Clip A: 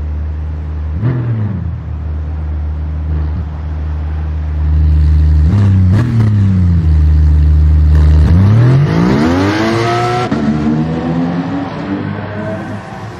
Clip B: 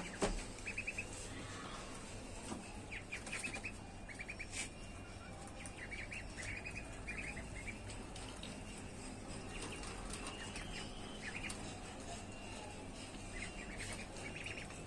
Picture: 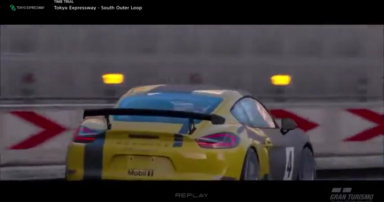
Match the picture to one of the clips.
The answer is A